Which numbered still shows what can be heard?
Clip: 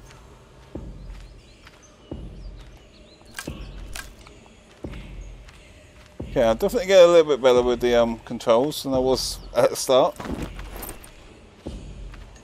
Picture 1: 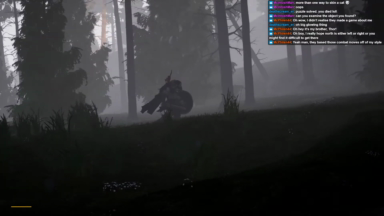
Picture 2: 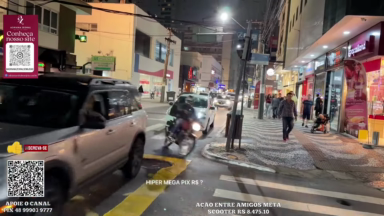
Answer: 1